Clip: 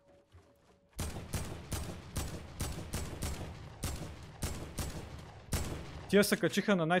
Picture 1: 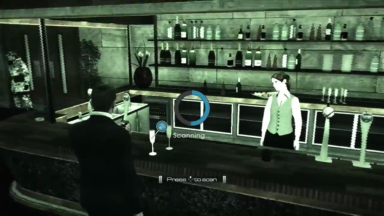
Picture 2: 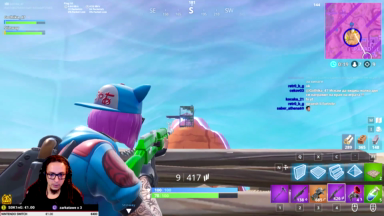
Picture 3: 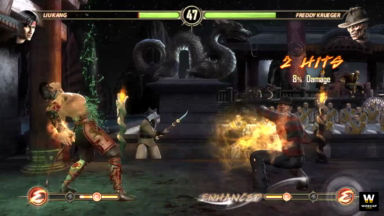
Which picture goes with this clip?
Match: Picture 2